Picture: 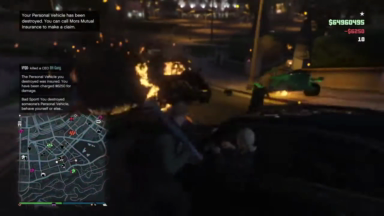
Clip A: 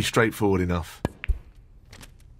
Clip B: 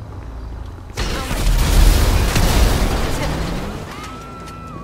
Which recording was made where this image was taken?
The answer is B